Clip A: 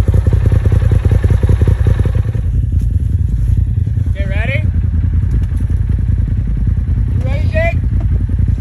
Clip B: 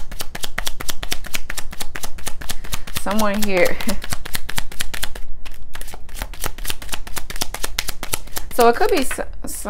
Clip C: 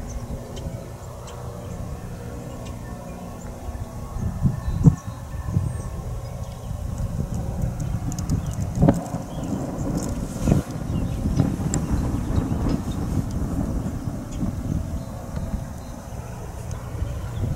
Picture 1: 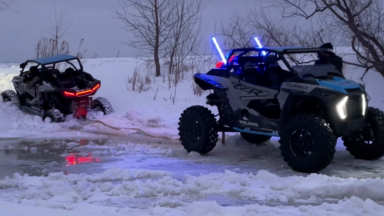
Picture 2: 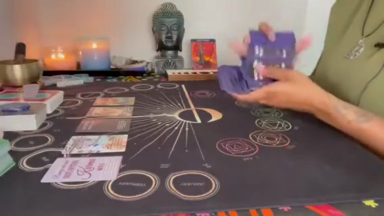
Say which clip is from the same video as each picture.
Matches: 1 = A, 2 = B